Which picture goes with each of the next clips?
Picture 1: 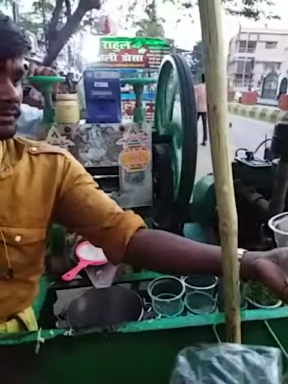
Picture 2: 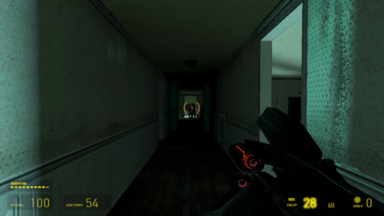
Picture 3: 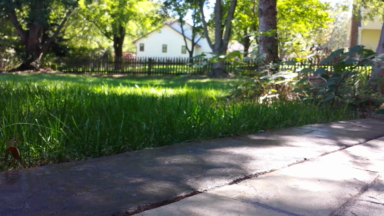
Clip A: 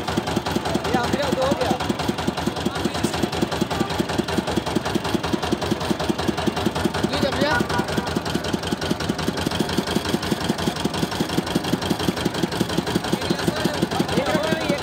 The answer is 1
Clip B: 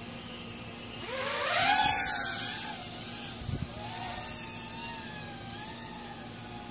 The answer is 3